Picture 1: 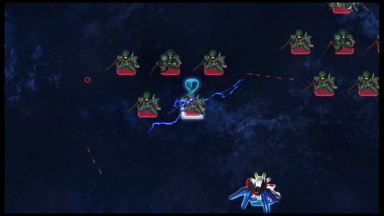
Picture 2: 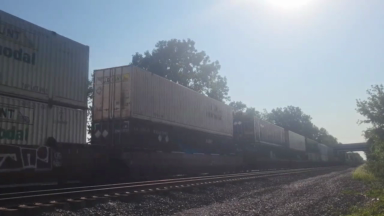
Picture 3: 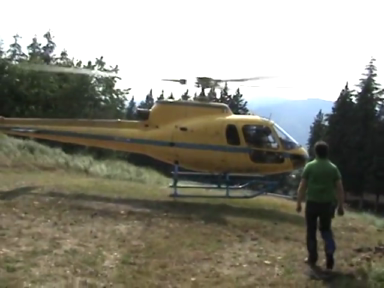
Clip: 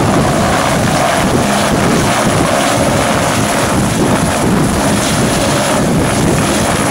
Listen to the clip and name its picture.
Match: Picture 3